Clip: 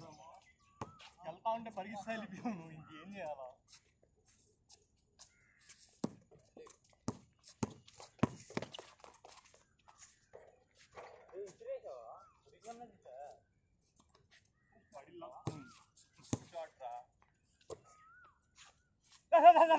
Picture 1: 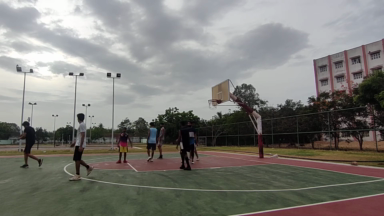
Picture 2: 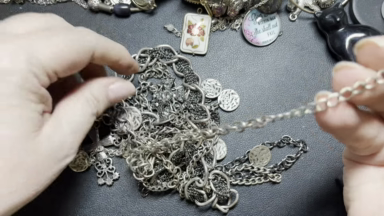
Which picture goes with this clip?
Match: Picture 1